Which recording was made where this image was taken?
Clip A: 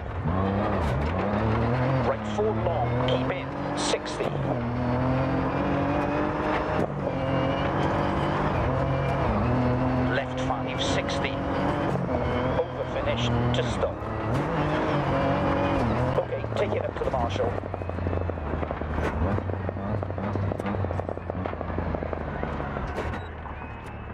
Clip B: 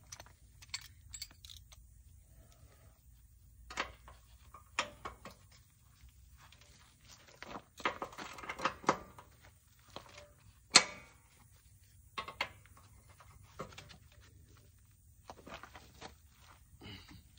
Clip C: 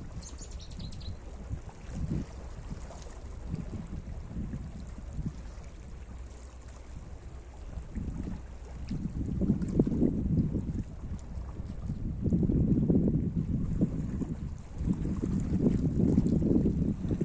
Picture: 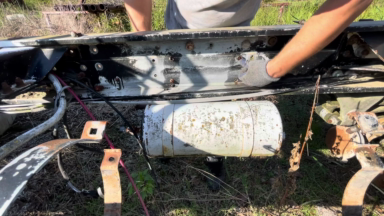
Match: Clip B